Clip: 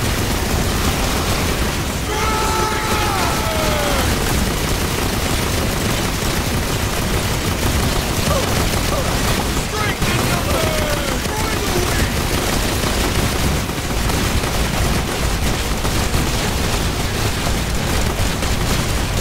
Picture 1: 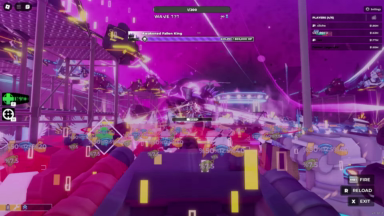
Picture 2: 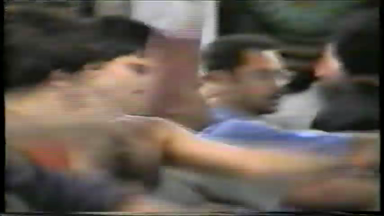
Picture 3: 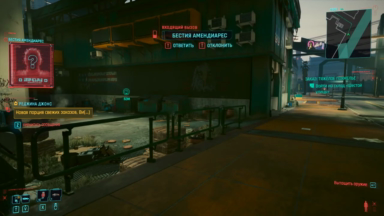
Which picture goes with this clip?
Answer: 1